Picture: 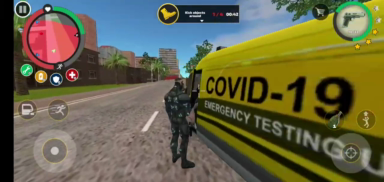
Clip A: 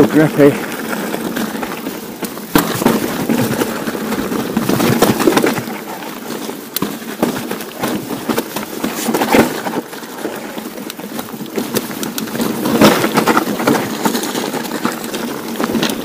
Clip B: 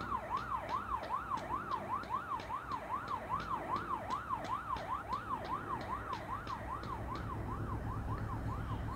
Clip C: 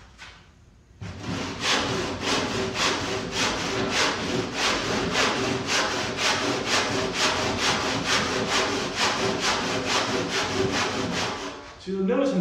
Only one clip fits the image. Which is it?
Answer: B